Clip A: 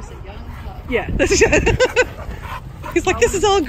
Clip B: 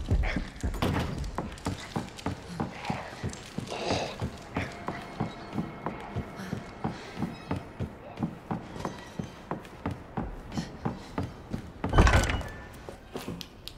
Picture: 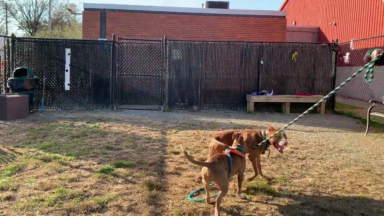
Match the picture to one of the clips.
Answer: A